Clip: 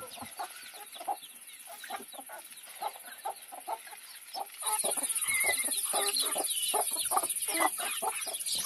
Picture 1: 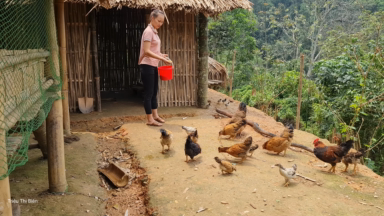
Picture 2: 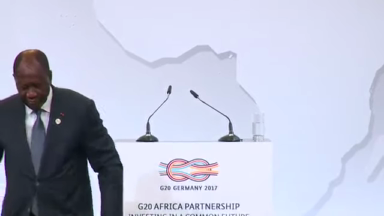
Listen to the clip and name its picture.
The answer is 1